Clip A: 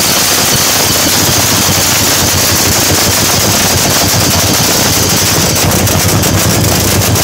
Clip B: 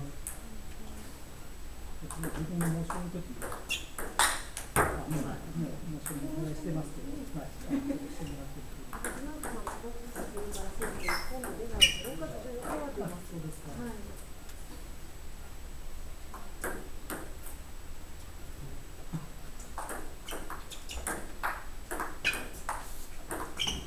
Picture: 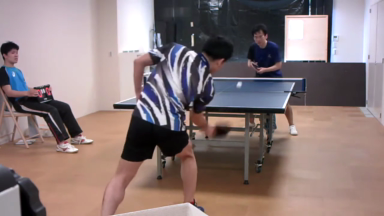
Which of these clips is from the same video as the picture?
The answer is B